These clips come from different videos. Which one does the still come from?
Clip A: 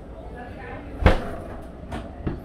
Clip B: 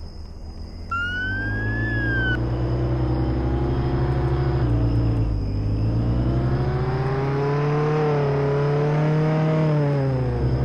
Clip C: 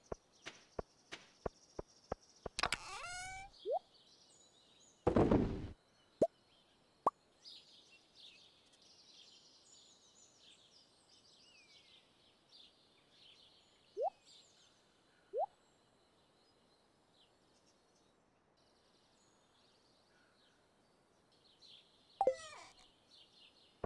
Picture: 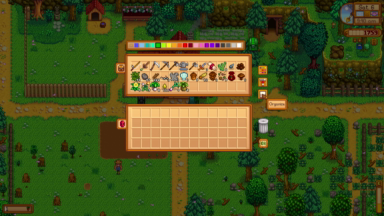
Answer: C